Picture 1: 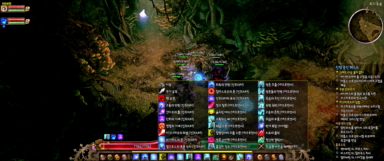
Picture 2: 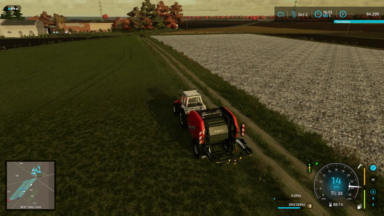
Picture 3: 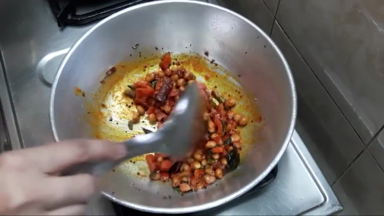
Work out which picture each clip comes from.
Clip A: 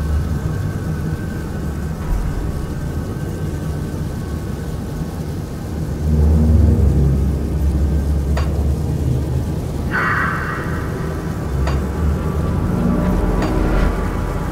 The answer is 1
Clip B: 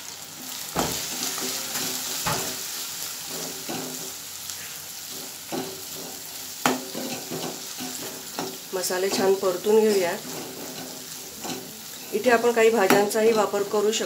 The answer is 3